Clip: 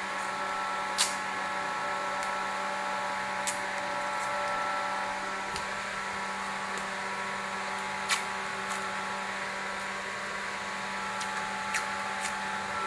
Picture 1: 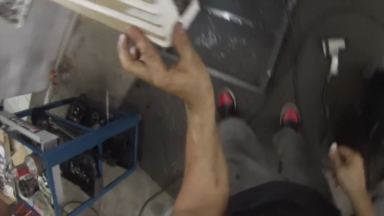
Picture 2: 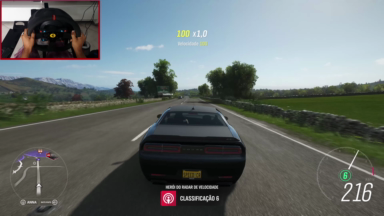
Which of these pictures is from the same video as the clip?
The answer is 1